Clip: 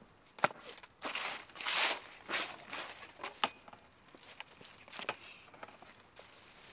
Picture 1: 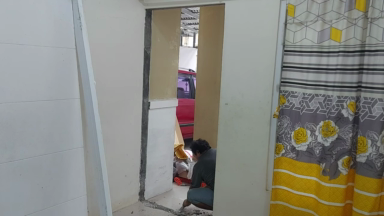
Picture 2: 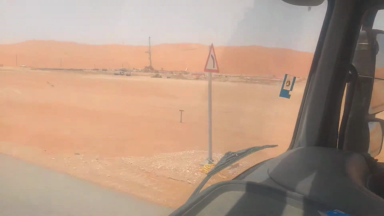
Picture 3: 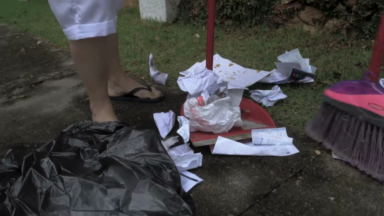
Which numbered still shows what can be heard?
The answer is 3